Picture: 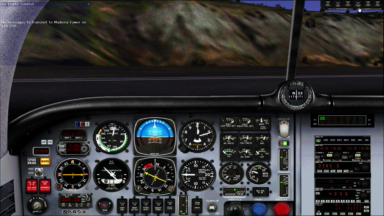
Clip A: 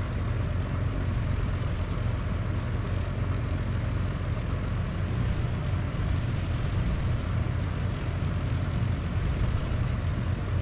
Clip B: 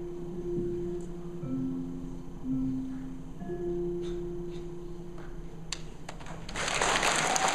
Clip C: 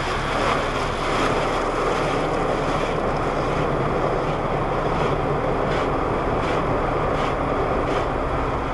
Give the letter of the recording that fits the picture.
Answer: A